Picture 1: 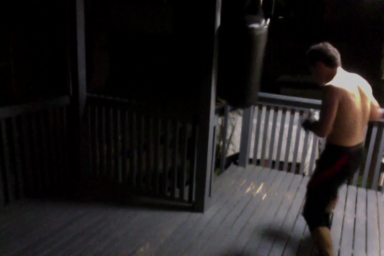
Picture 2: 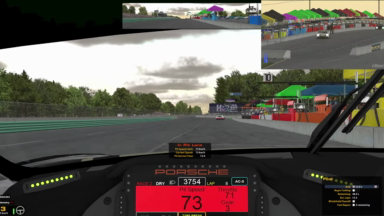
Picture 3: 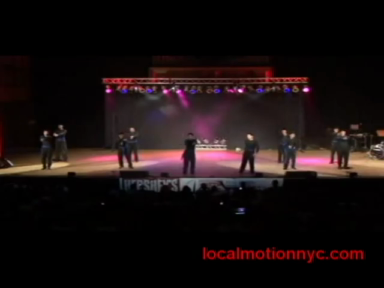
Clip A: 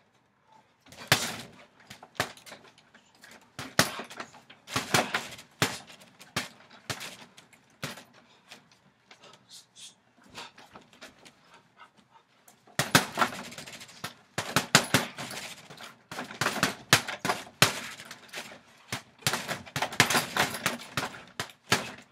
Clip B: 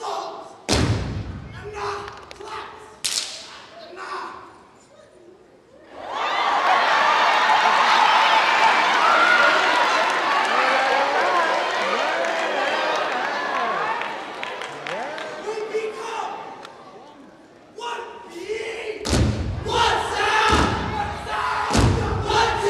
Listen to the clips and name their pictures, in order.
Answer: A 1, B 3